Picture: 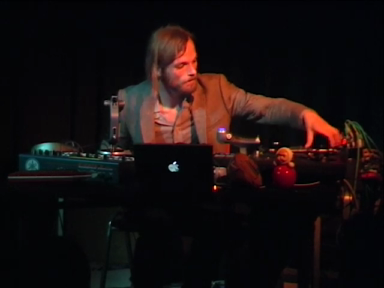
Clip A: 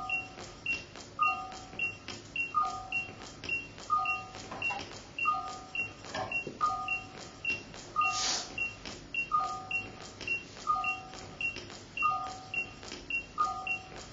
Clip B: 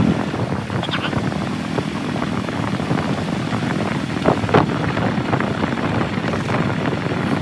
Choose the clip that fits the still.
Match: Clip A